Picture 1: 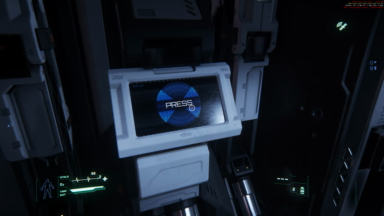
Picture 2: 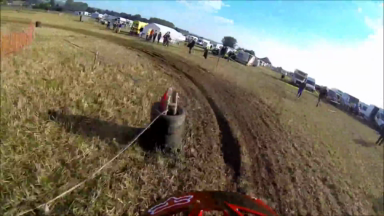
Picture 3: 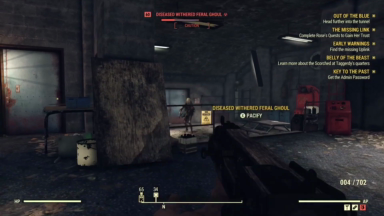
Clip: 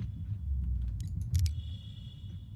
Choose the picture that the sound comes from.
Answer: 1